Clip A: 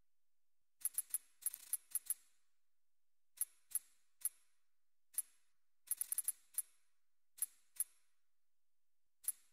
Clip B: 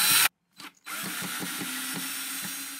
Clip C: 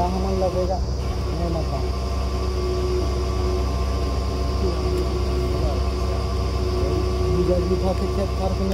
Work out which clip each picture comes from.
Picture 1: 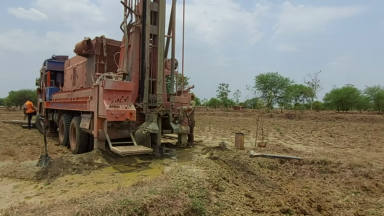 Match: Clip C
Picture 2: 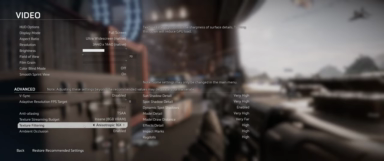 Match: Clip A